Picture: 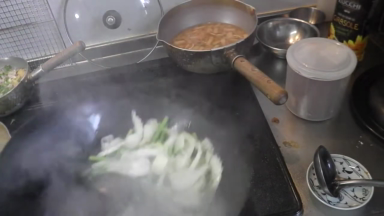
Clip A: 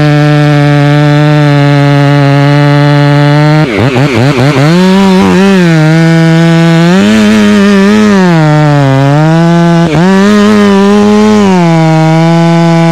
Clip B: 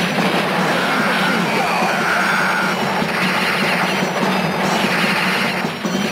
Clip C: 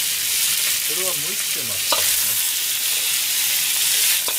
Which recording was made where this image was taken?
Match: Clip C